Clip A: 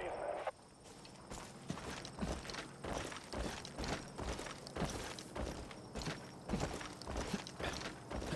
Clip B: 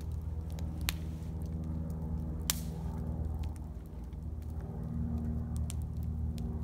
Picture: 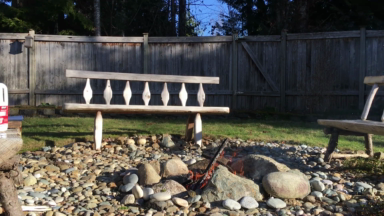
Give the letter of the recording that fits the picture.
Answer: B